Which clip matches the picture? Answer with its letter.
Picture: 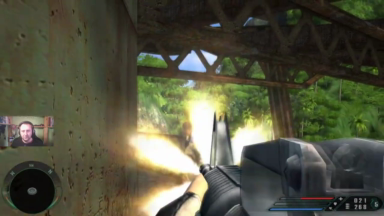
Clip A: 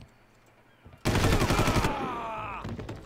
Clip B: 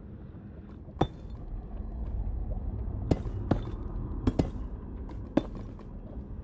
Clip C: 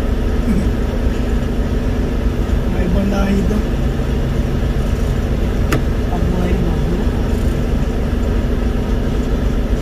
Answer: A